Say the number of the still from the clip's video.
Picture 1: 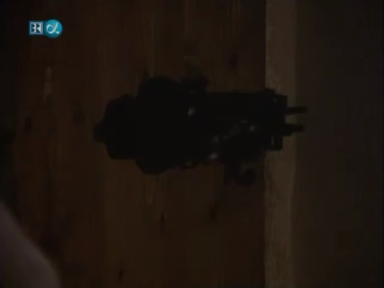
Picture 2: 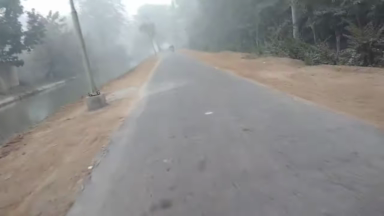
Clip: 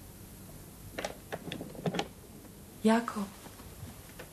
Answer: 1